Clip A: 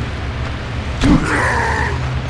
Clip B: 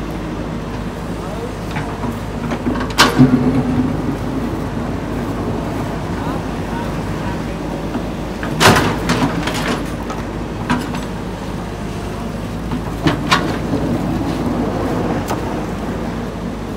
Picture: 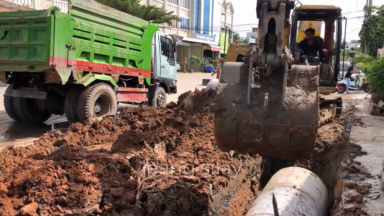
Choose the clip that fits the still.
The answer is B